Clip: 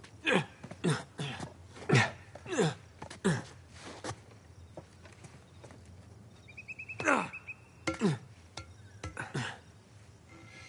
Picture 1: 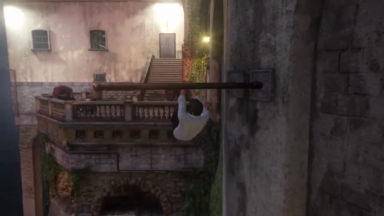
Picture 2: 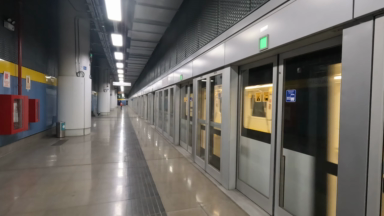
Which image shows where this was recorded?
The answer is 1